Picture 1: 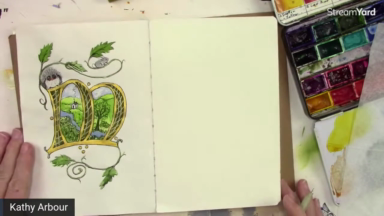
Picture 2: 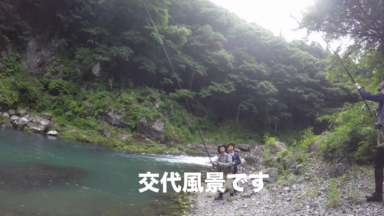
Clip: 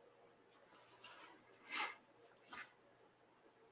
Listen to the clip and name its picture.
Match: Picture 1